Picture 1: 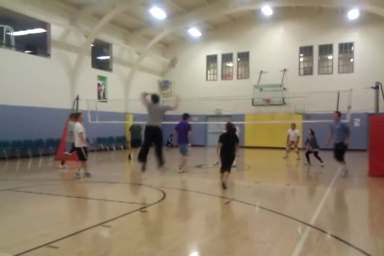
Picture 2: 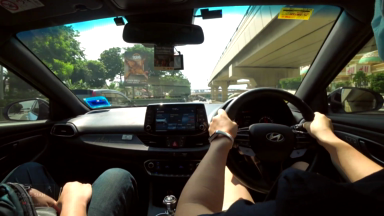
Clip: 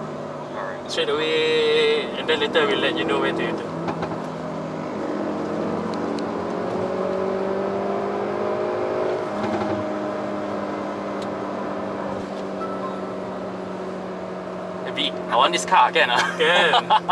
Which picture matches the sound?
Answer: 2